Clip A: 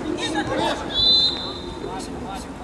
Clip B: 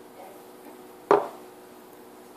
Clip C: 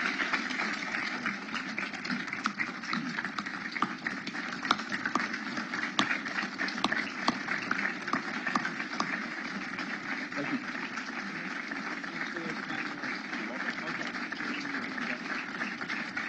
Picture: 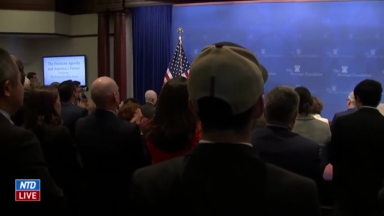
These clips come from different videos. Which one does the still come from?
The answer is C